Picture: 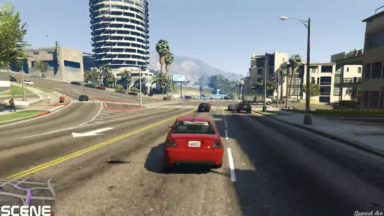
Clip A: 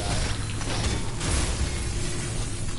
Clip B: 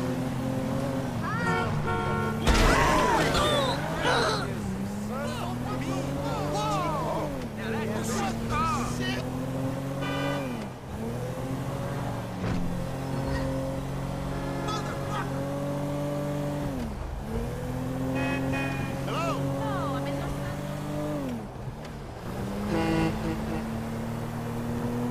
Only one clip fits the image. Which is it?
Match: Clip B